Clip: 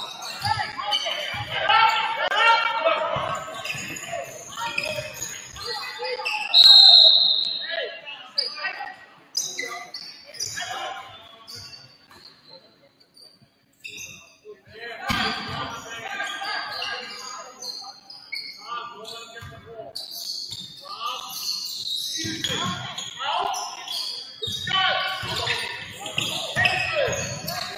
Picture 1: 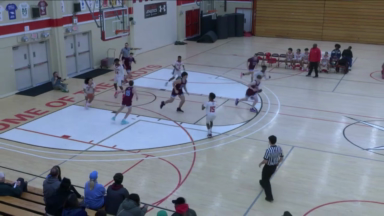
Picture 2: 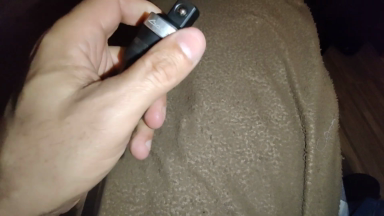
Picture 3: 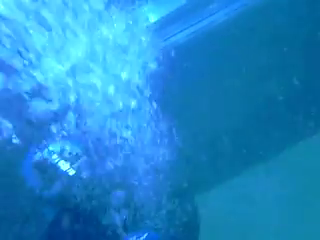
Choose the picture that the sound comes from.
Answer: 1